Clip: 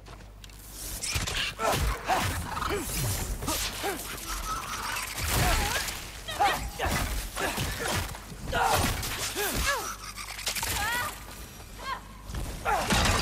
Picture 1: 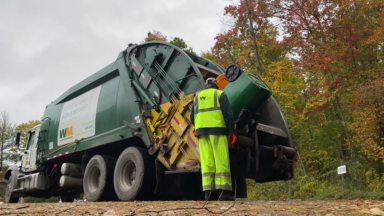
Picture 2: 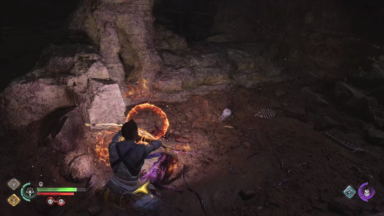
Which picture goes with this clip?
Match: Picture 2